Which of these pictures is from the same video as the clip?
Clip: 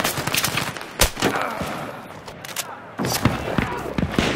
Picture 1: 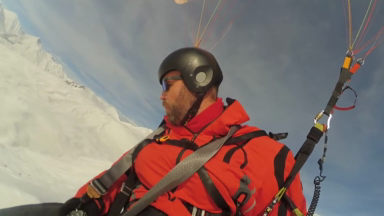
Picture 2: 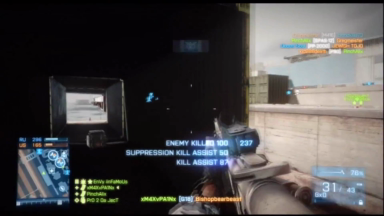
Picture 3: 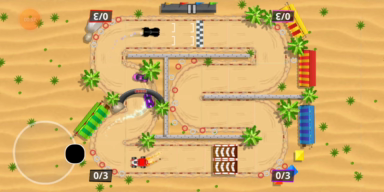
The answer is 2